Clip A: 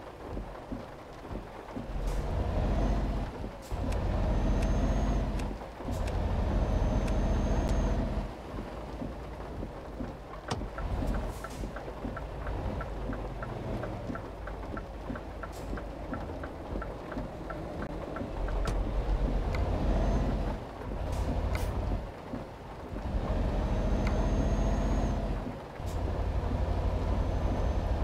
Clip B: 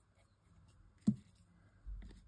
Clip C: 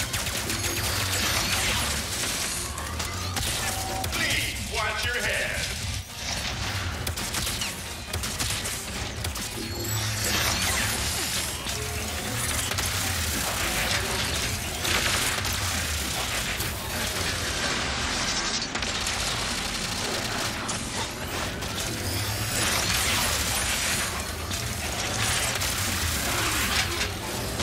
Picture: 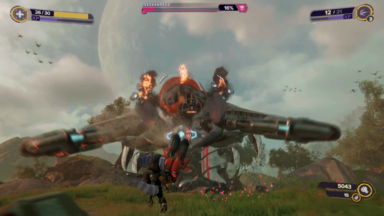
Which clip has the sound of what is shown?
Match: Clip C